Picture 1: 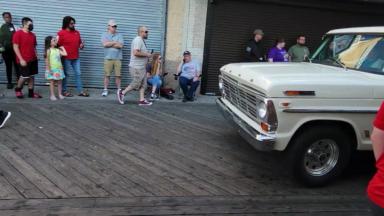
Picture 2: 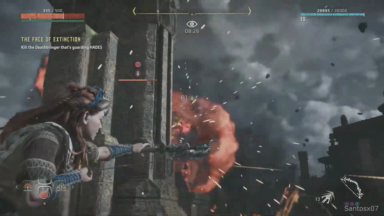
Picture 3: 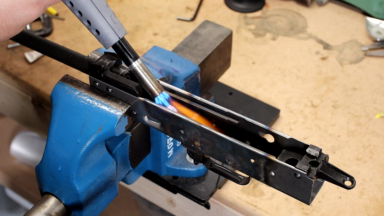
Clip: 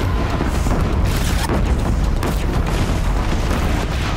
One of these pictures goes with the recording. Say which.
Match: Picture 2